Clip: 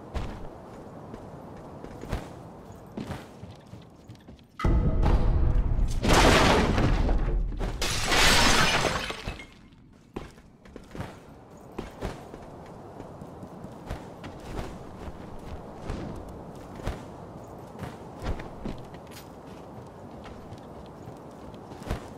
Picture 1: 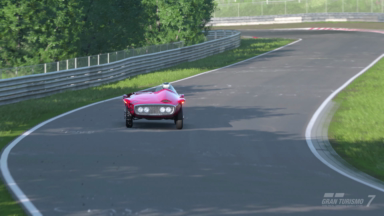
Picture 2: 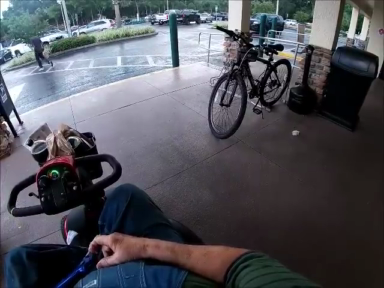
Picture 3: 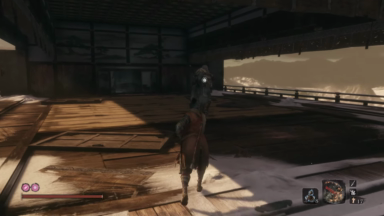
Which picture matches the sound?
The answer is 3